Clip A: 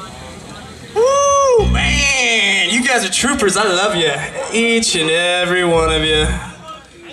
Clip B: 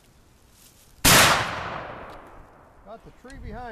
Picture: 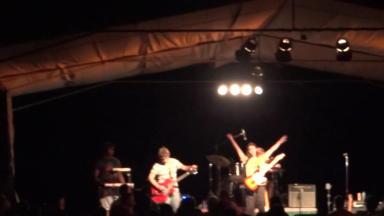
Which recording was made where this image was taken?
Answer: A